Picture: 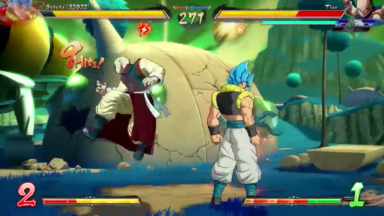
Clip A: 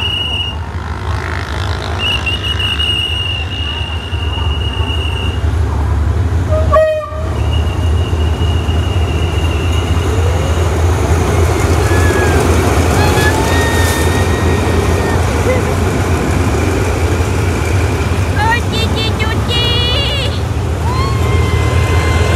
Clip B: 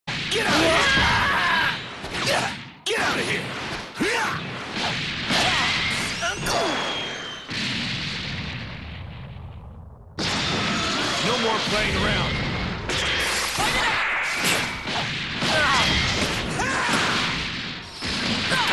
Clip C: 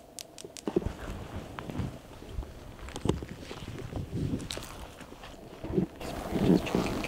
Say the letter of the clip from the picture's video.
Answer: B